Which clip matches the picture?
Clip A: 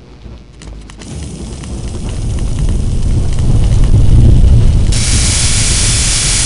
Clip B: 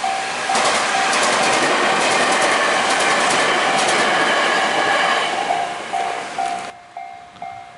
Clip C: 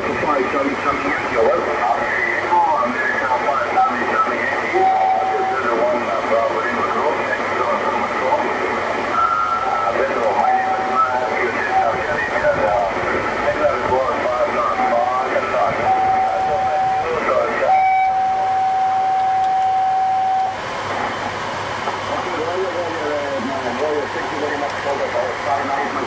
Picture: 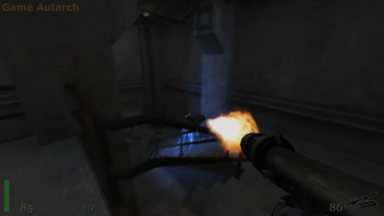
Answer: A